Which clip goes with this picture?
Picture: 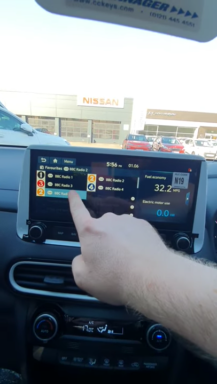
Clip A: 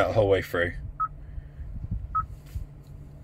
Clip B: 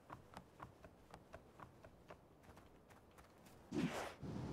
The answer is A